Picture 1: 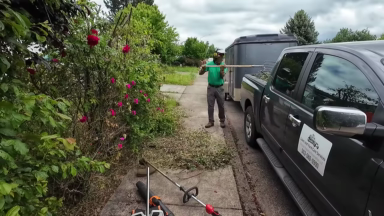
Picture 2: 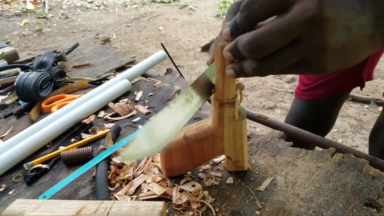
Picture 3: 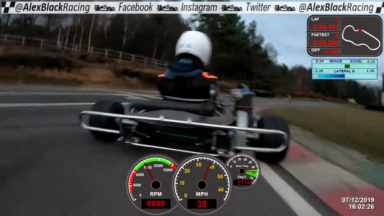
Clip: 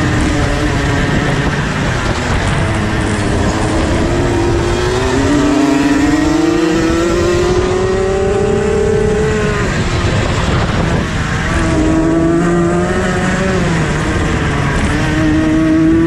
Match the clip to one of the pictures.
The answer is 3